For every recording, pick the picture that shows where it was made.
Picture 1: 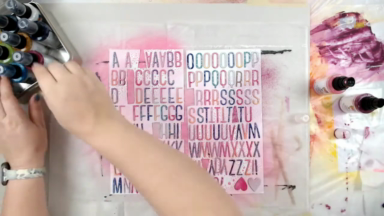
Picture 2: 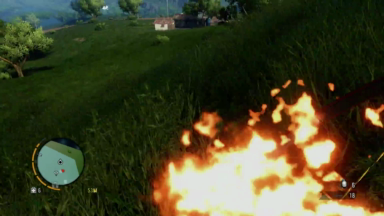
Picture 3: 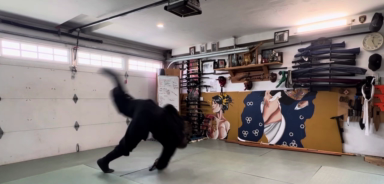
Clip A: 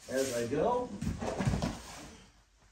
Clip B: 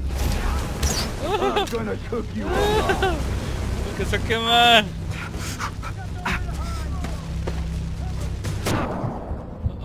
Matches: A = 3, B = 2